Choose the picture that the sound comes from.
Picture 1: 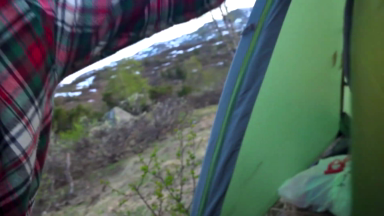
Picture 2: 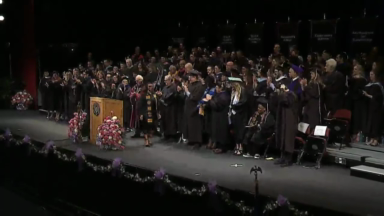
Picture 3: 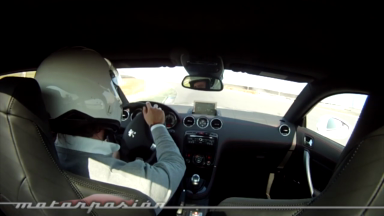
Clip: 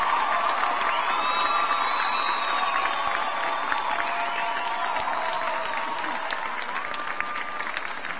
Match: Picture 2